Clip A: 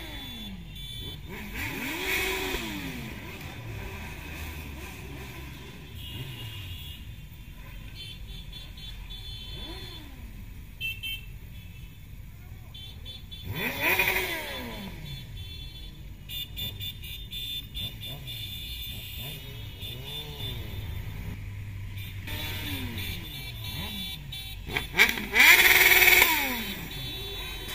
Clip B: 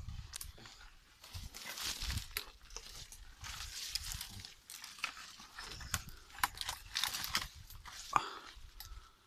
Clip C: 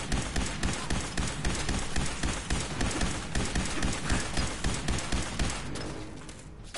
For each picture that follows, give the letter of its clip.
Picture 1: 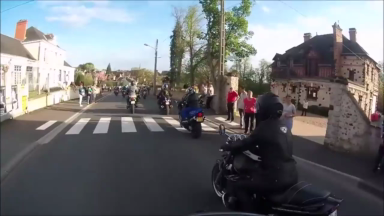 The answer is A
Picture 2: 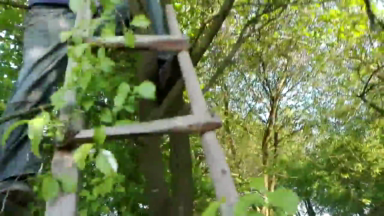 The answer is B